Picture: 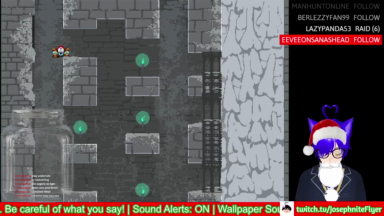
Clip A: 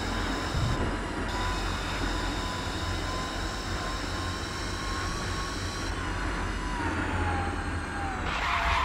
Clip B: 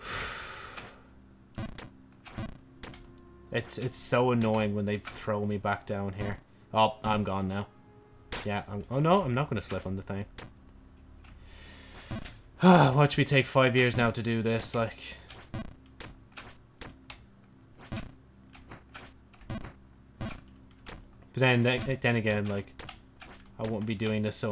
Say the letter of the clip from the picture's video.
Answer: B